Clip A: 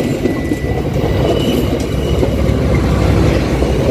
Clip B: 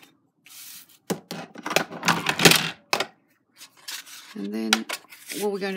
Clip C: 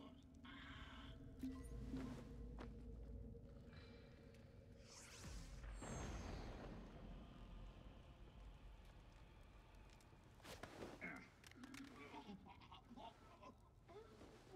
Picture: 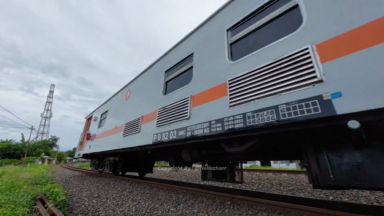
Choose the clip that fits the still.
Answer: A